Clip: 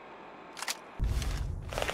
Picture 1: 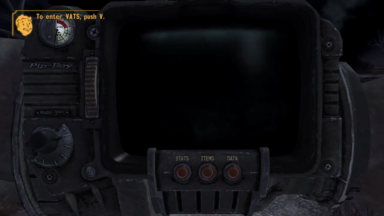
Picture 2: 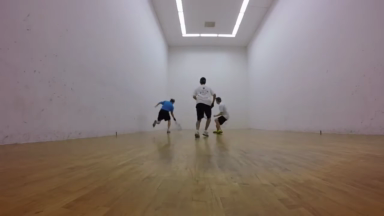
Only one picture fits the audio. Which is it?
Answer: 1